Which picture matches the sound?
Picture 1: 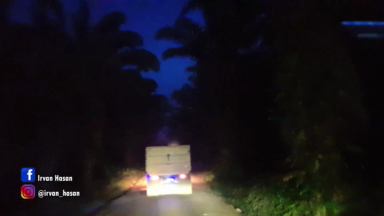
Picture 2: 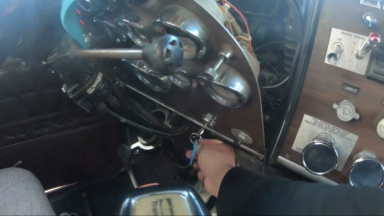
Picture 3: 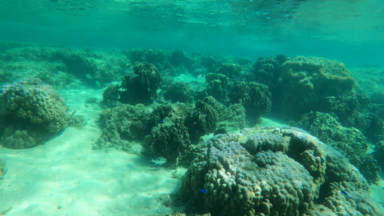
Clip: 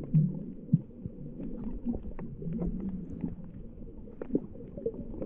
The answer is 3